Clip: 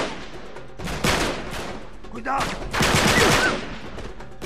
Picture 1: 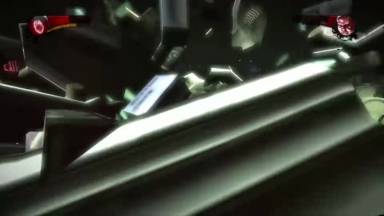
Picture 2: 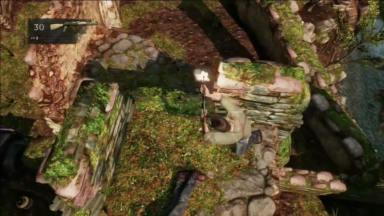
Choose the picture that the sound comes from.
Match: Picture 2